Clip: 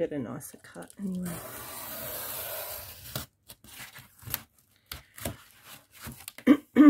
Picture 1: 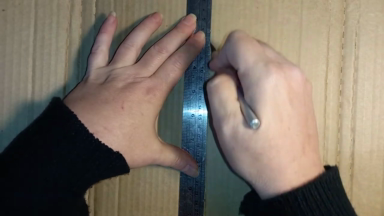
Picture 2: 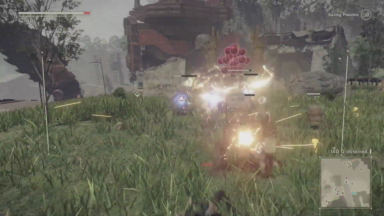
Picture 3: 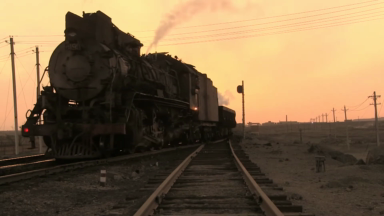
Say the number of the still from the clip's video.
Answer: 1